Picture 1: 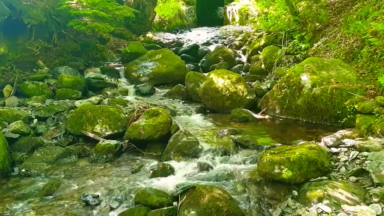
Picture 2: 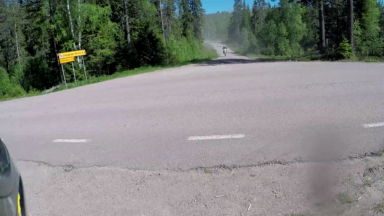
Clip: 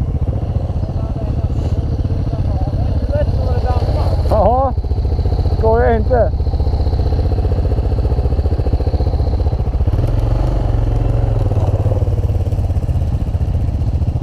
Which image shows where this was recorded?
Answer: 2